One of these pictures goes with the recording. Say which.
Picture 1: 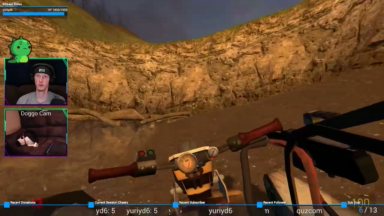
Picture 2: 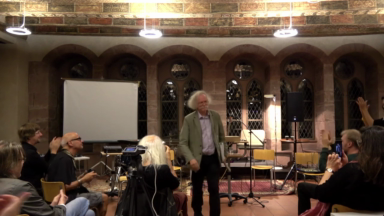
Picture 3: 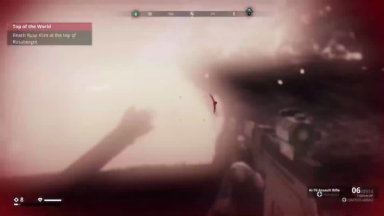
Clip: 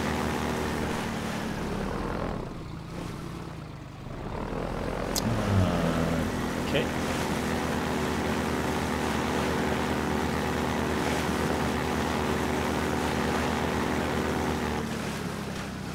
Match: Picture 1